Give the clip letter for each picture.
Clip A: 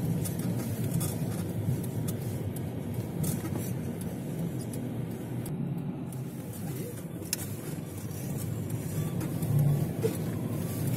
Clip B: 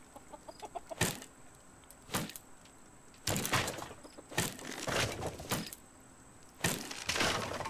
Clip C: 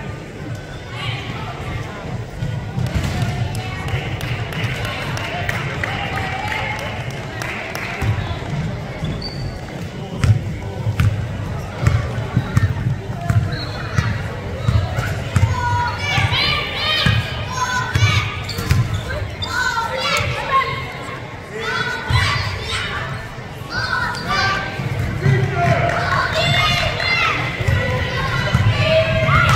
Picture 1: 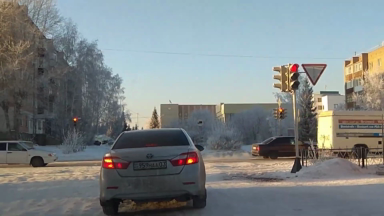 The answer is A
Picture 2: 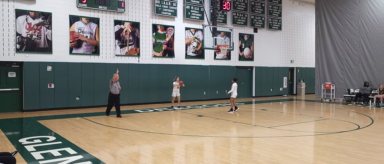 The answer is C